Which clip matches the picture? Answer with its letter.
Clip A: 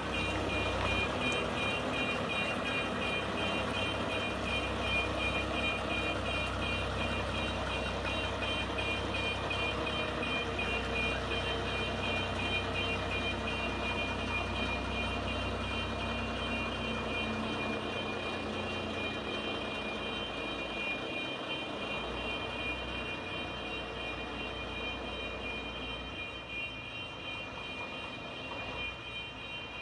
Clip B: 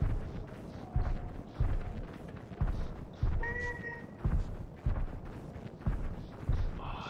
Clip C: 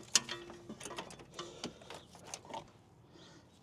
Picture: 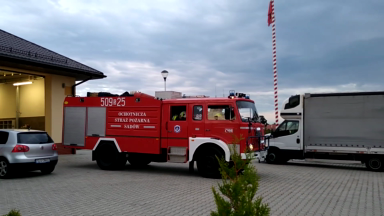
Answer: A